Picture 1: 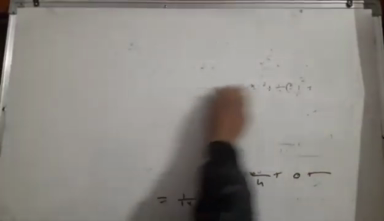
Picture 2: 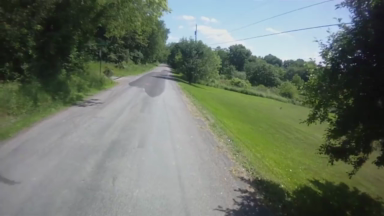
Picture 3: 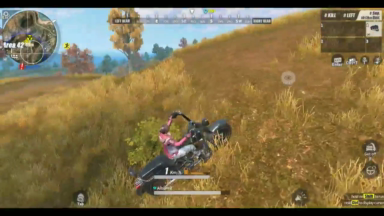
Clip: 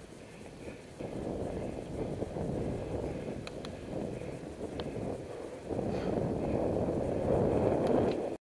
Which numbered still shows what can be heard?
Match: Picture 2